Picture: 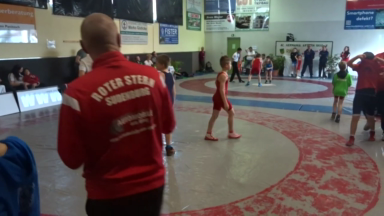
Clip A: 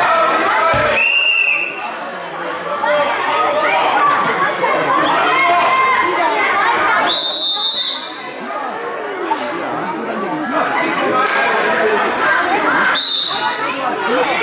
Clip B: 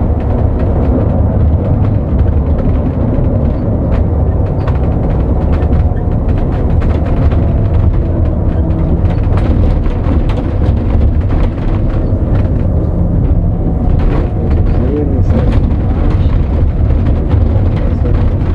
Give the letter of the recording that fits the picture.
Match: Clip A